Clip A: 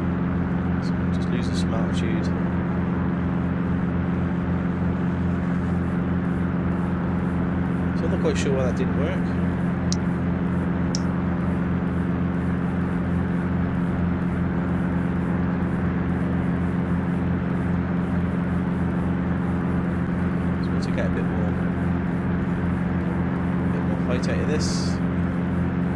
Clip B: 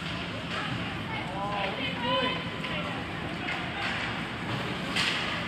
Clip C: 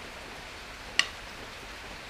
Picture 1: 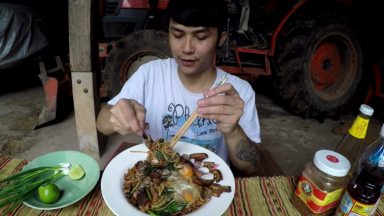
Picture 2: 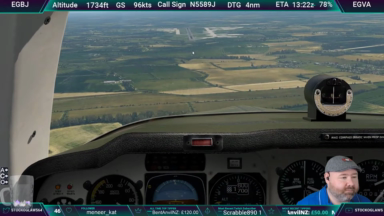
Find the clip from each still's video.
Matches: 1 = C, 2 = A